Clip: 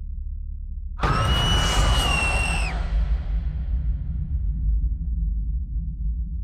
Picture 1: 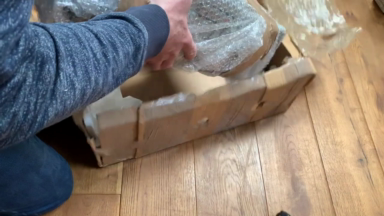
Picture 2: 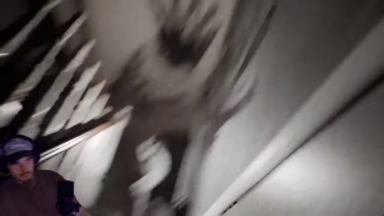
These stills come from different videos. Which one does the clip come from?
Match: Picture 2